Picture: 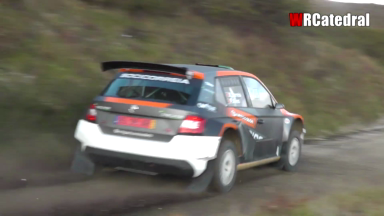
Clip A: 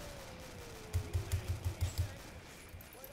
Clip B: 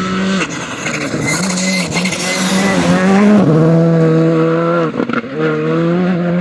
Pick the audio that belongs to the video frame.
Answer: B